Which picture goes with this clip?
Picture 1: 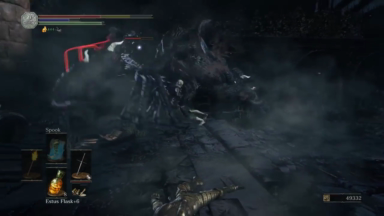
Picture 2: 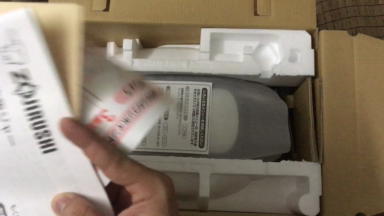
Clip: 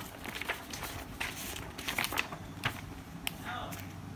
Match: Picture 2